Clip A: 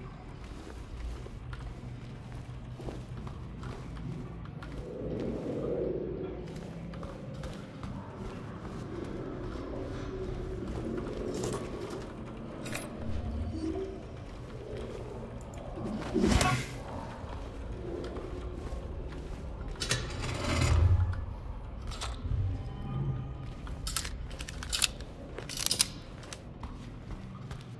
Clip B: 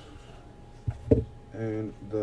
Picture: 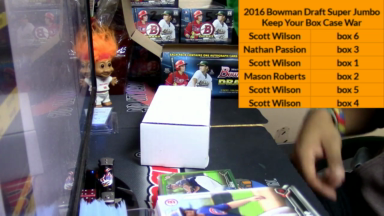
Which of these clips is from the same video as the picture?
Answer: B